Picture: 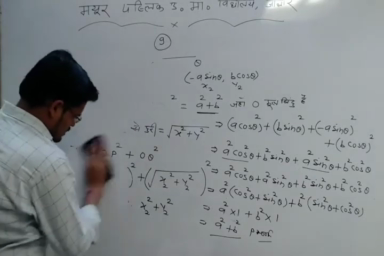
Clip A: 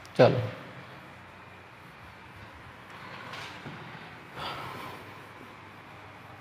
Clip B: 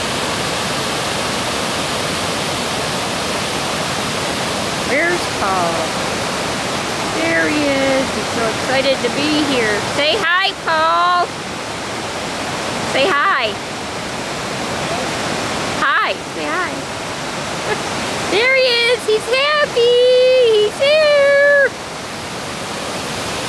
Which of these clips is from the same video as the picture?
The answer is A